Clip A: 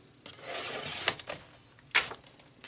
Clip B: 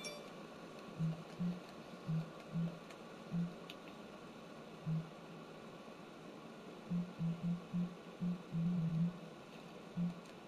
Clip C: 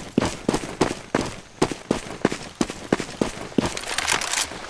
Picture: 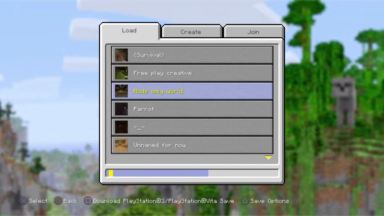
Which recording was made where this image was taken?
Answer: B